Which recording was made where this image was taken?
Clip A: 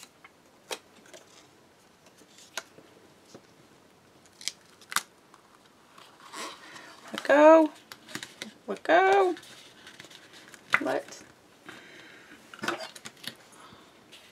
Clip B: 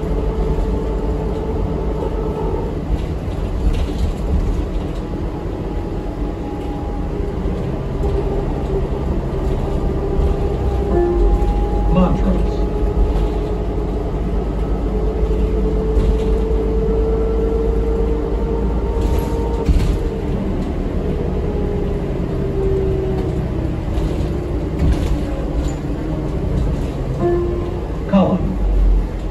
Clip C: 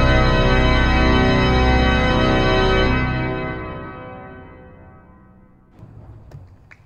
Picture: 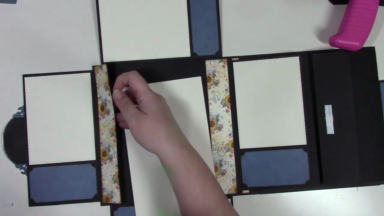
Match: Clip A